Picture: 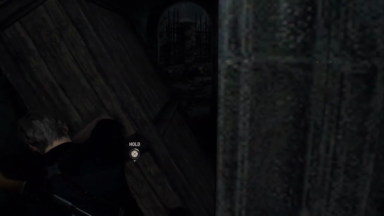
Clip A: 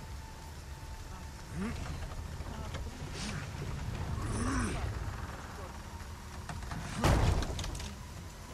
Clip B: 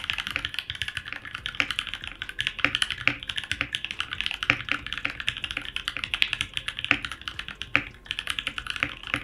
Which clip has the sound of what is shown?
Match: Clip A